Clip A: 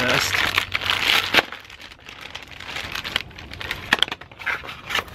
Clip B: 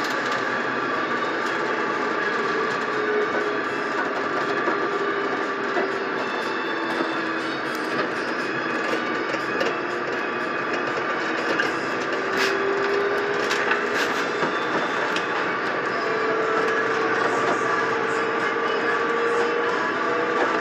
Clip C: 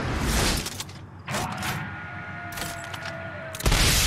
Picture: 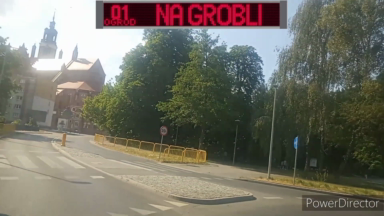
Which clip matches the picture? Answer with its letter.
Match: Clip B